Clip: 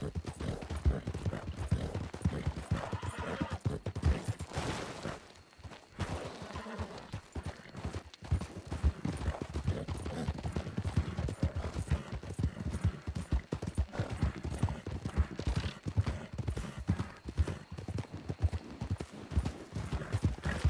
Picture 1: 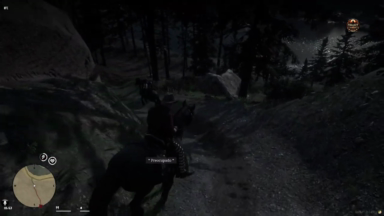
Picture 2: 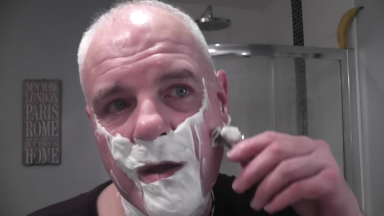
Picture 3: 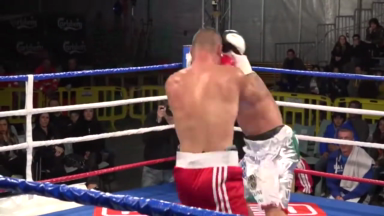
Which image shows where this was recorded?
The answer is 1